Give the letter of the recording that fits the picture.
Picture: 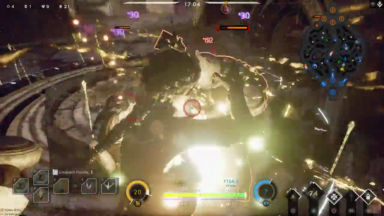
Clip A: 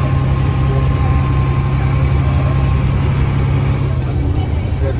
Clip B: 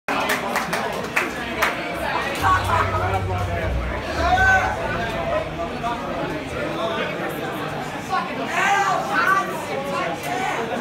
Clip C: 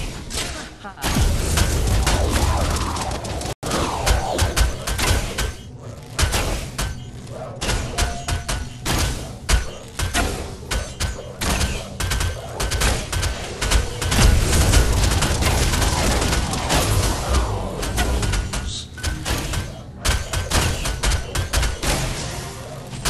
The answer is C